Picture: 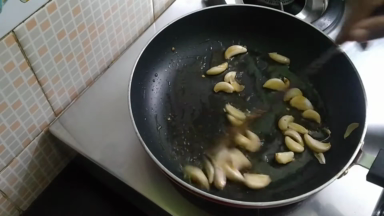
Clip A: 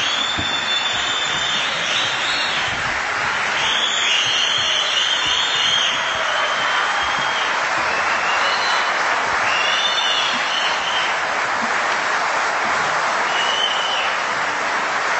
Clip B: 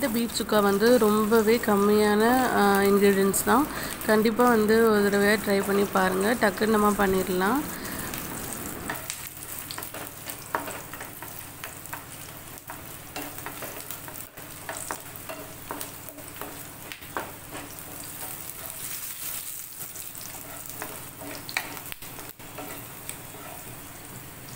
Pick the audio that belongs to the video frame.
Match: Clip B